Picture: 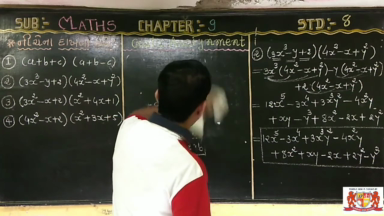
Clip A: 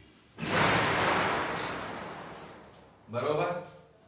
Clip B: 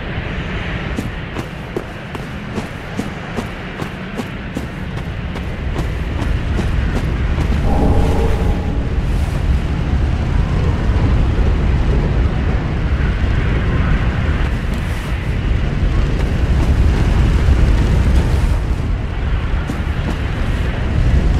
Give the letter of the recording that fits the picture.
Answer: A